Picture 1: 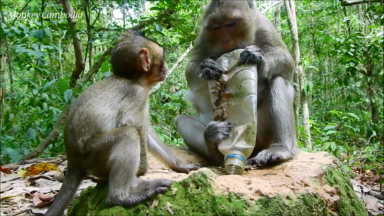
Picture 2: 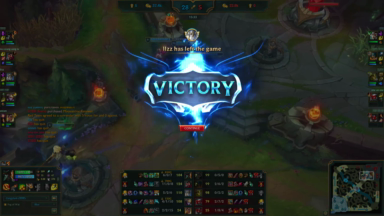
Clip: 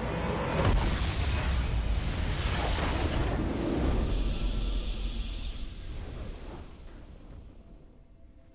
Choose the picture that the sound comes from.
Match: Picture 2